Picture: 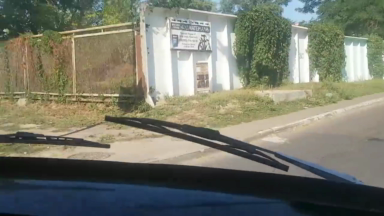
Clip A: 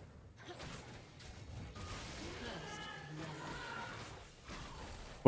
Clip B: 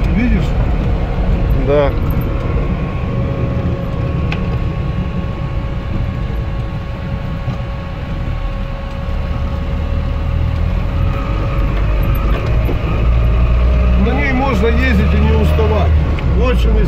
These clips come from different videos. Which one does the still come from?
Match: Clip B